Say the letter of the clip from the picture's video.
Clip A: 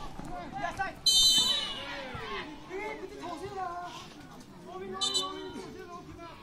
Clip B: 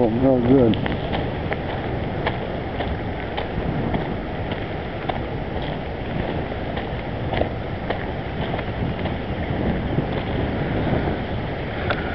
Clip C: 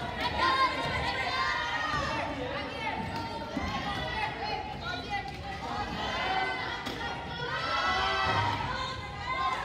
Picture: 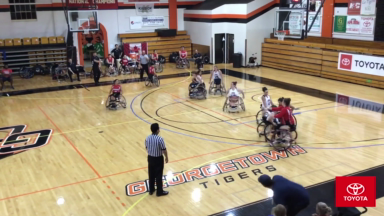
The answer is C